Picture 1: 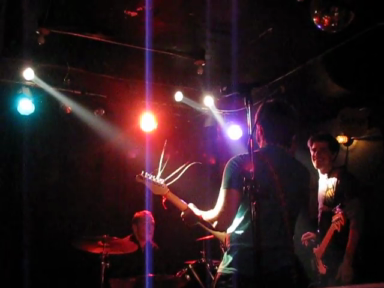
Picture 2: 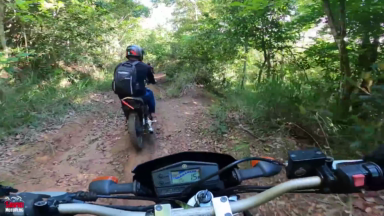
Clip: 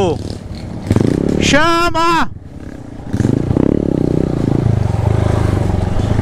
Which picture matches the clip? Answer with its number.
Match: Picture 2